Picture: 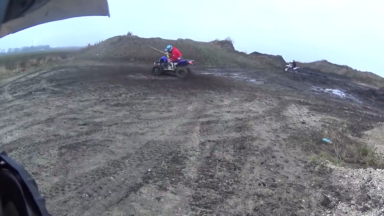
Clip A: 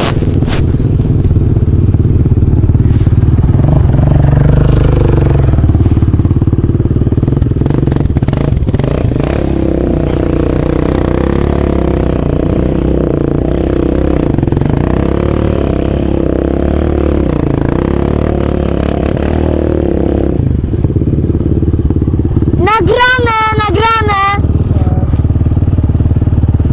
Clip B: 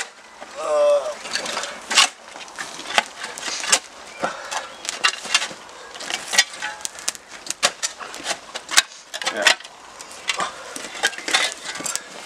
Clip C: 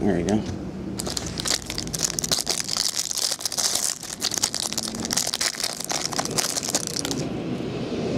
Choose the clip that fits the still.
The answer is A